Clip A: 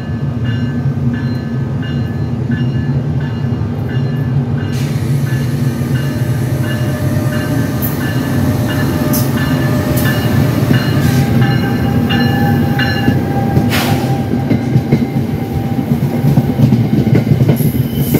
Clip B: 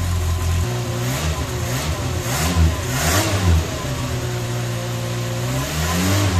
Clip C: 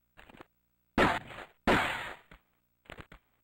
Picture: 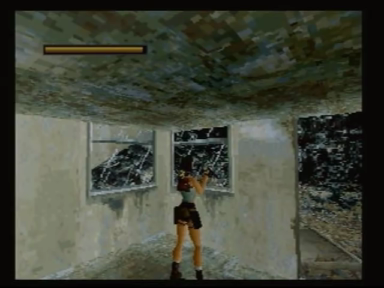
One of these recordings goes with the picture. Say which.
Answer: C